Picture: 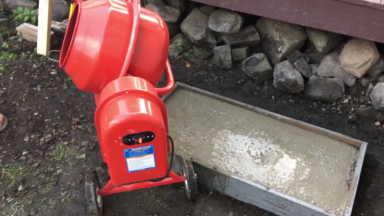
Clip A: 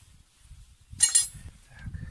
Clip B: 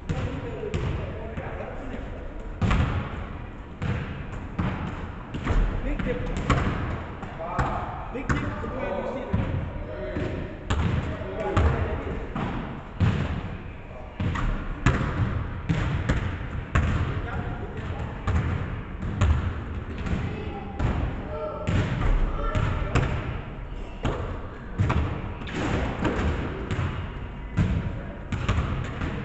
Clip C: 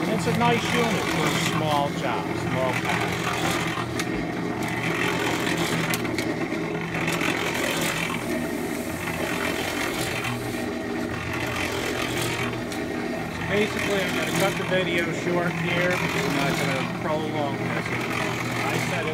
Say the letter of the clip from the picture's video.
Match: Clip C